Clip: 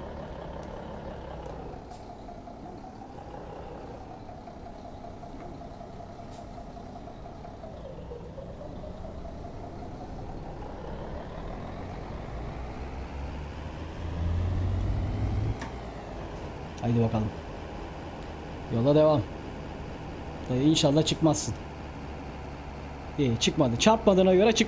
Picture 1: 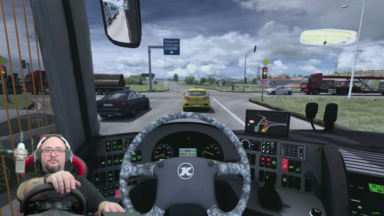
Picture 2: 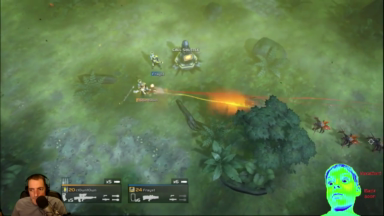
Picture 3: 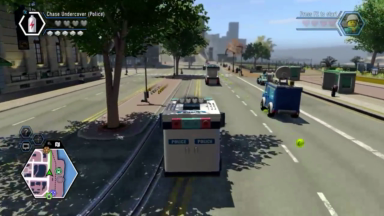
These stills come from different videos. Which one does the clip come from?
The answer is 1